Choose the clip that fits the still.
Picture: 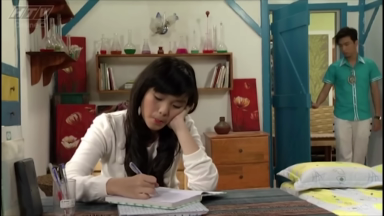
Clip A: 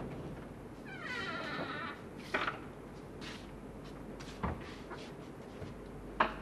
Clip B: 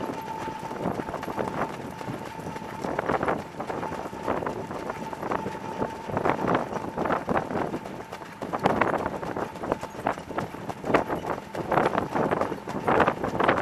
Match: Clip A